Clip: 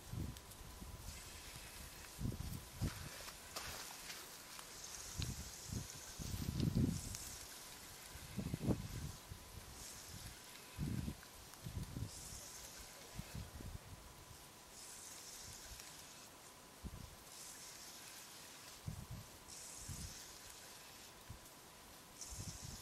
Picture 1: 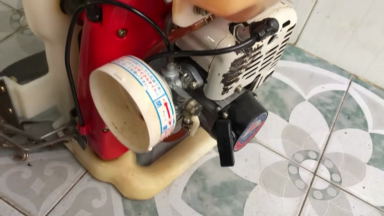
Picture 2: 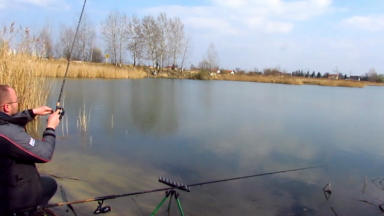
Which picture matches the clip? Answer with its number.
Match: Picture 2